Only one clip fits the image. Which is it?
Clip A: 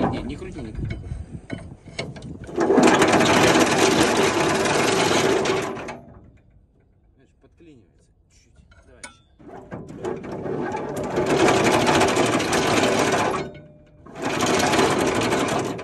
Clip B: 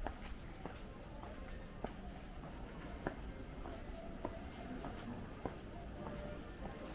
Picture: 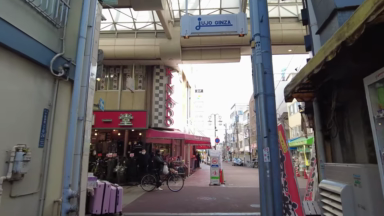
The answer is B